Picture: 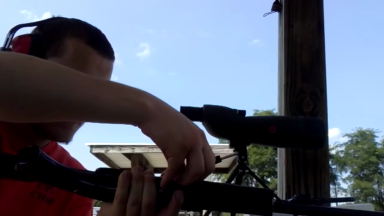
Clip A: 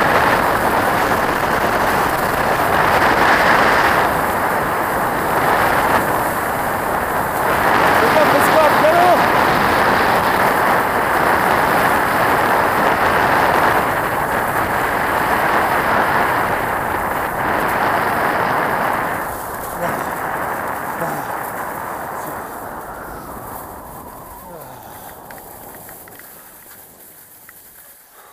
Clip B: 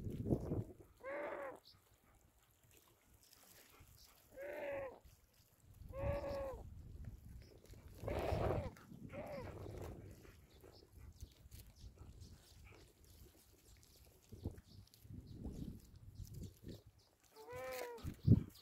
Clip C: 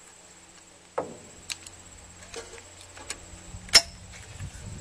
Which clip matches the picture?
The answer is C